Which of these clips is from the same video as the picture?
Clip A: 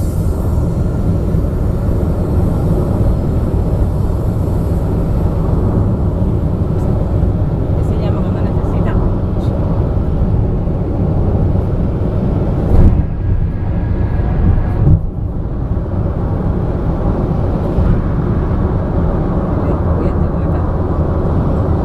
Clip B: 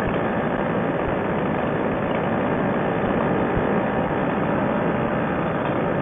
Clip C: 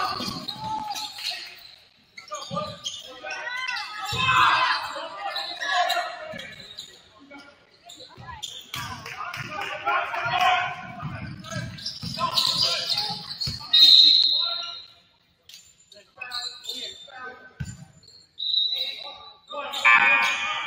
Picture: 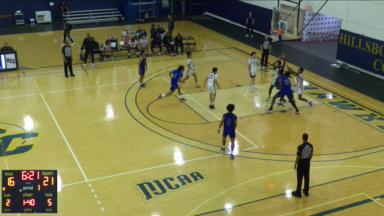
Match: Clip C